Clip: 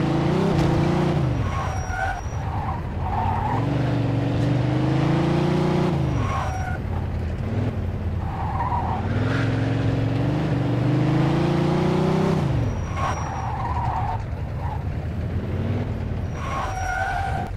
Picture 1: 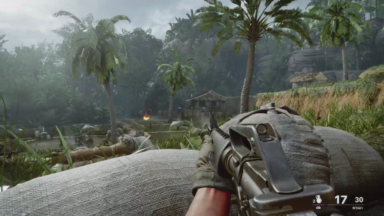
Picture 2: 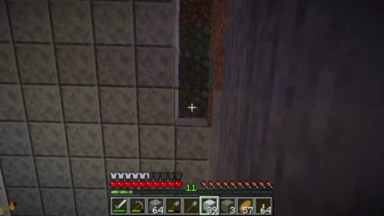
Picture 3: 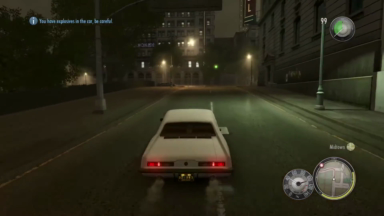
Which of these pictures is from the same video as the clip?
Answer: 3